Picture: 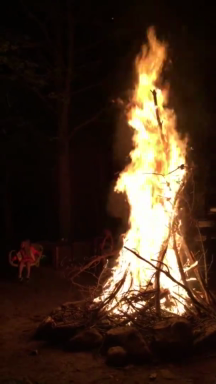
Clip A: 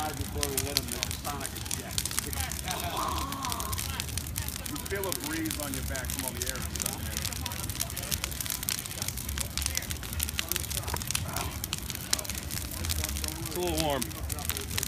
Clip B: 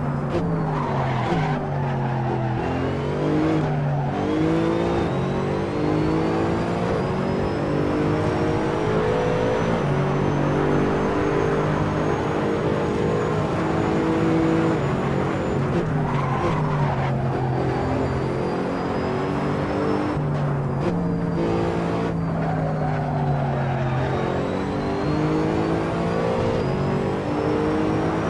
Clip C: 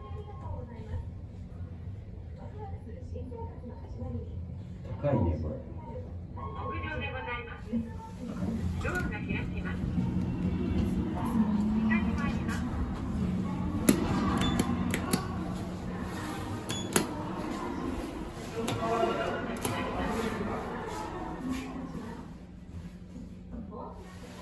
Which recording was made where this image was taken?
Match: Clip A